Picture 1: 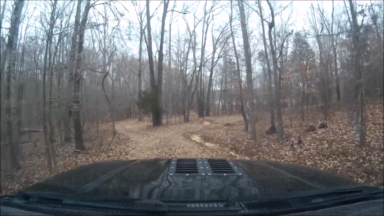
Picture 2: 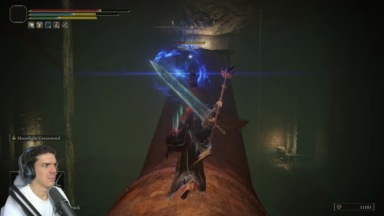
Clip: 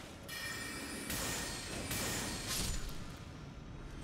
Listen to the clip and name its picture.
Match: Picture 2